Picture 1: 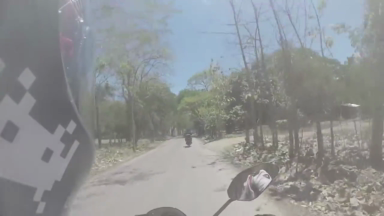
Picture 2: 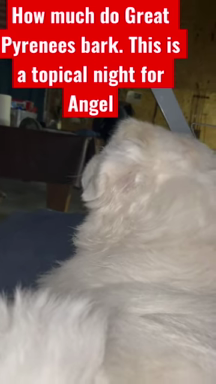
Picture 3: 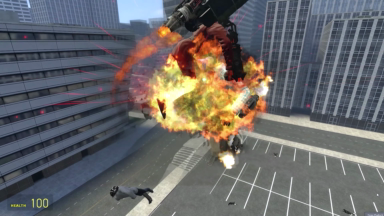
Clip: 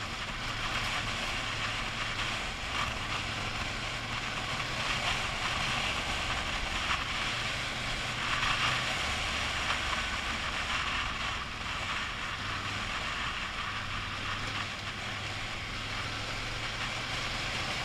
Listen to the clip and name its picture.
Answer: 1